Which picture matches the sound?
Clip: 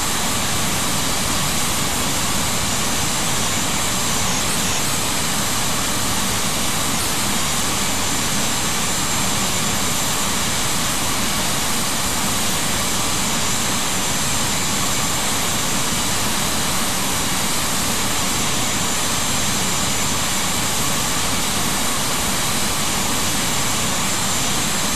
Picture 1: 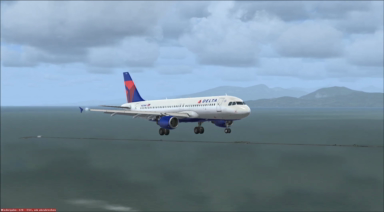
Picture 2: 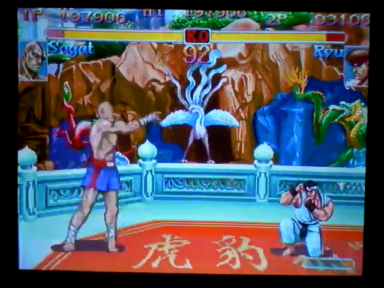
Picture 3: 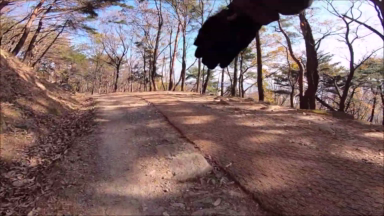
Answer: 1